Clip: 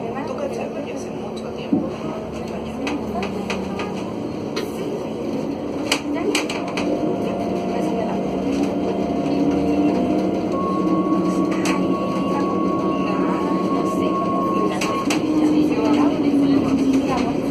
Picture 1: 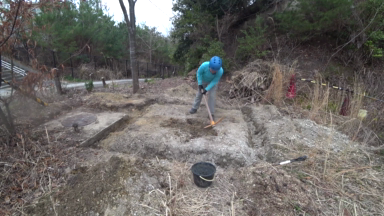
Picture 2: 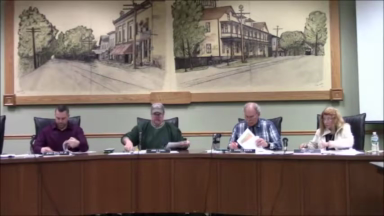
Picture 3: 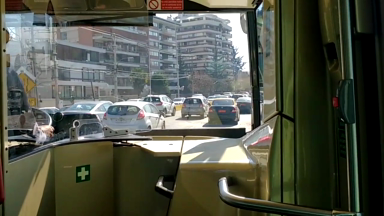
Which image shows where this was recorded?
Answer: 3